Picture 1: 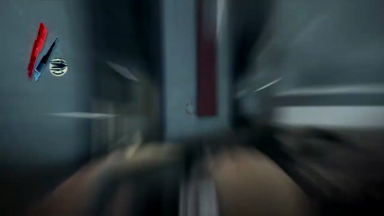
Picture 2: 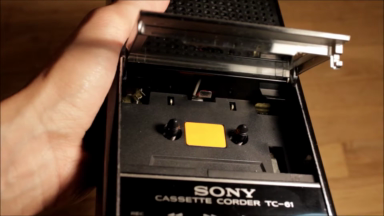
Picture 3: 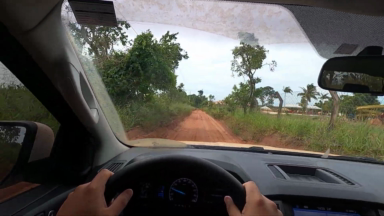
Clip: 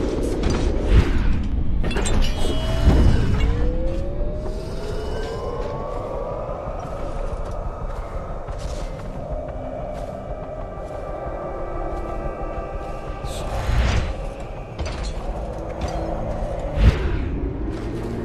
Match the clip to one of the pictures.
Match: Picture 1